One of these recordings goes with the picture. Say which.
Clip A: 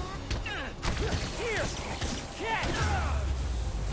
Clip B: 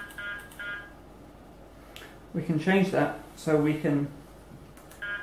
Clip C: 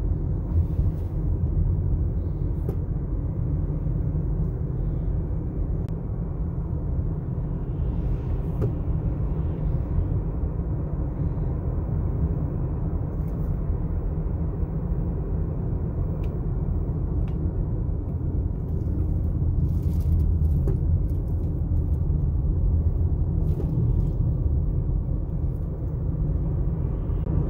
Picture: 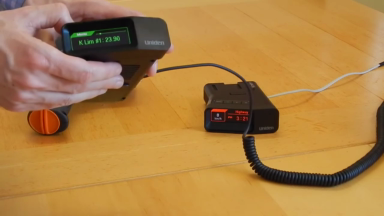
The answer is B